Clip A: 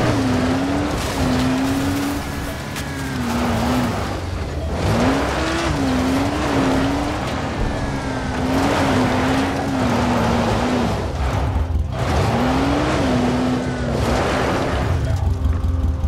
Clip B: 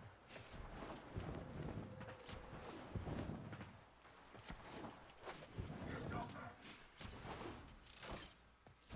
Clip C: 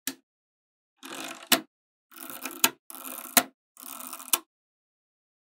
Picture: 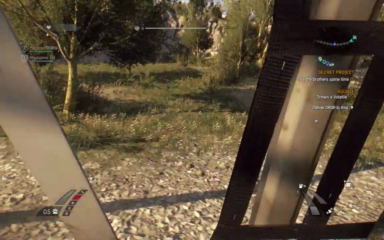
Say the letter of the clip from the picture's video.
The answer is A